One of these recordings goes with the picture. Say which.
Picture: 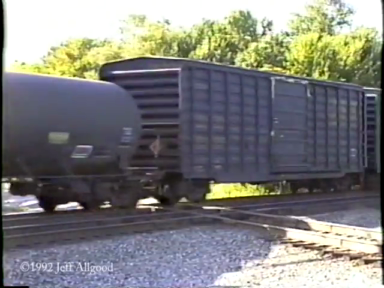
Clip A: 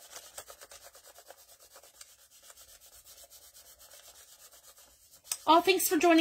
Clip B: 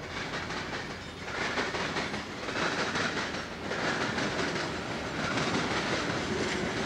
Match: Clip B